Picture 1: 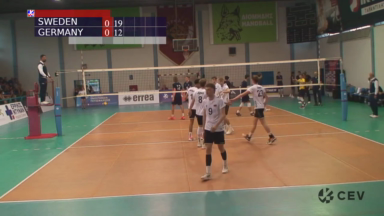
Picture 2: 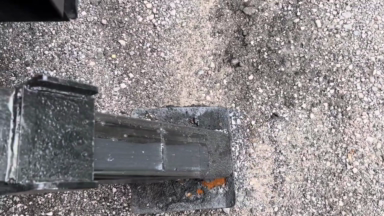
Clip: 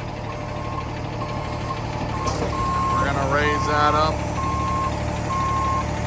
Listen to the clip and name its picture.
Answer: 2